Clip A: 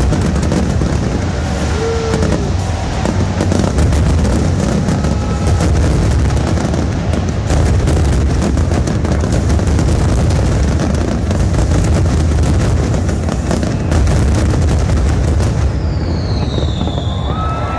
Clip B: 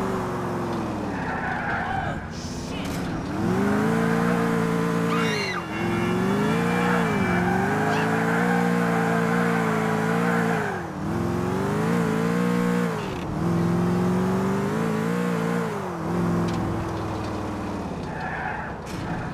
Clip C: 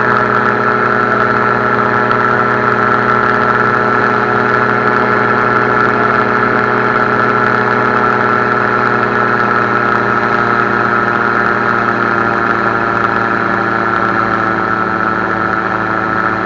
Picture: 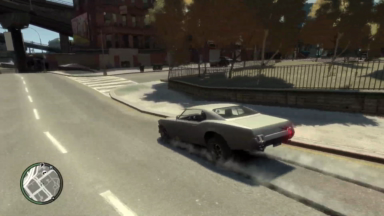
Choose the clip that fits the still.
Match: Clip B